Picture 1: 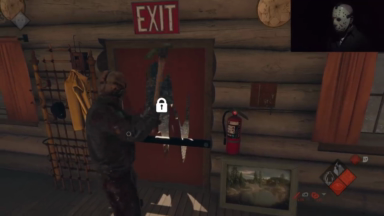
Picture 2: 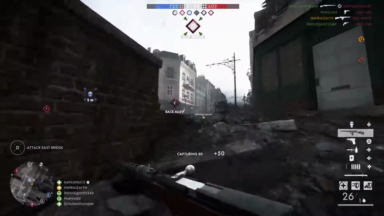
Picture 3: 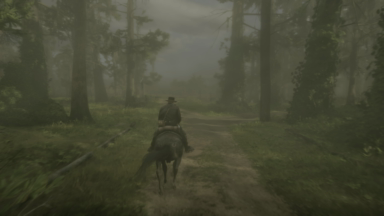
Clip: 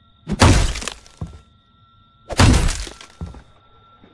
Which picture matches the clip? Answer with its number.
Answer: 1